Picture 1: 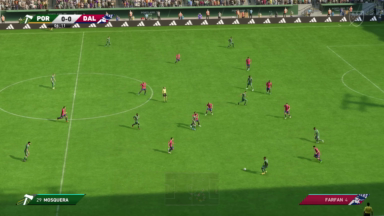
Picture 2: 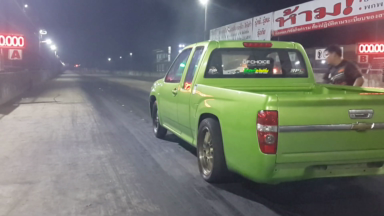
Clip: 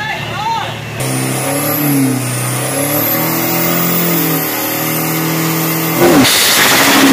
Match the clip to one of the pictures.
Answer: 2